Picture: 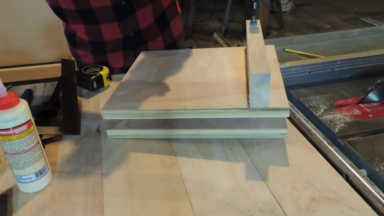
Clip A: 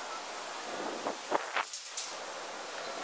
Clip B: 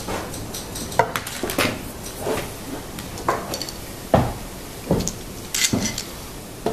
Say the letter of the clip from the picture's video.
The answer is B